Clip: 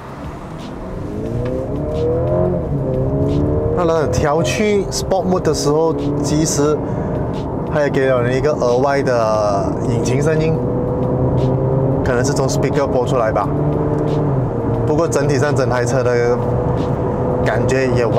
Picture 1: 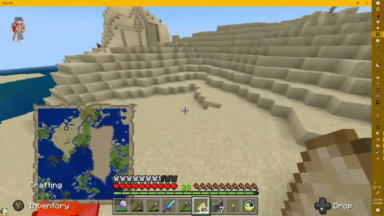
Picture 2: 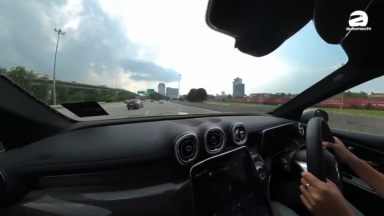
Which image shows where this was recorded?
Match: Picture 2